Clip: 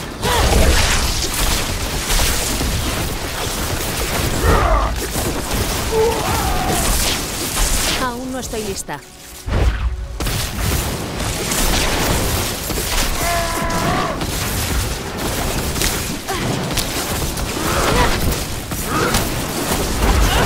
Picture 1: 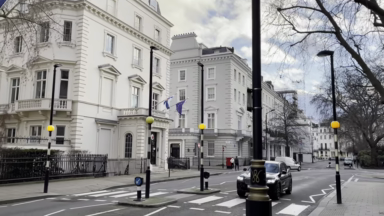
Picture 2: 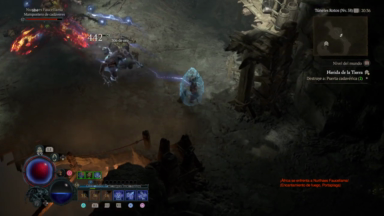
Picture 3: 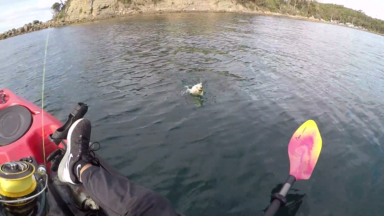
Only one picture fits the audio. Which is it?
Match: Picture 2